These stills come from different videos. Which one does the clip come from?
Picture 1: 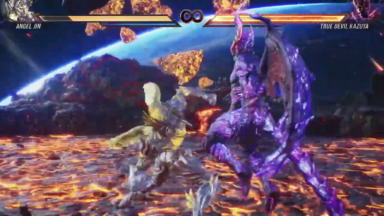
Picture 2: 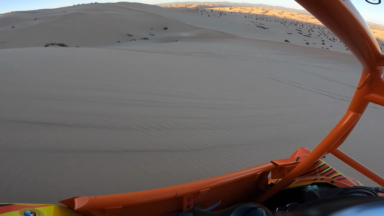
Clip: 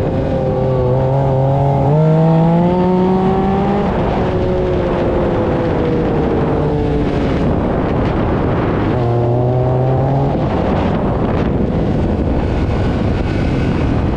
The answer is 2